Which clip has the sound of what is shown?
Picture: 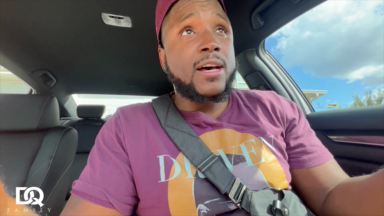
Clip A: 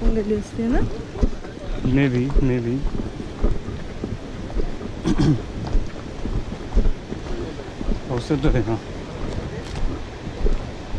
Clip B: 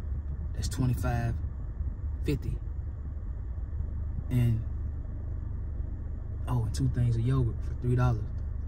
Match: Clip B